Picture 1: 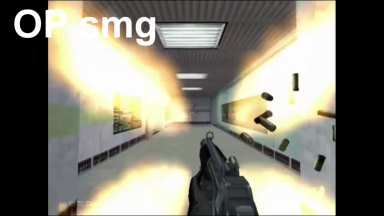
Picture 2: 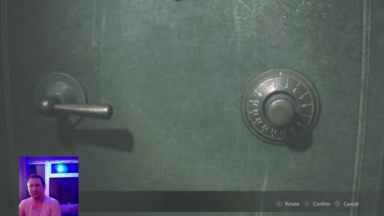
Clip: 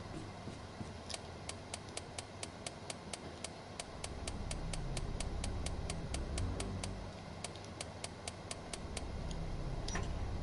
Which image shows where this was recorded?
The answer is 2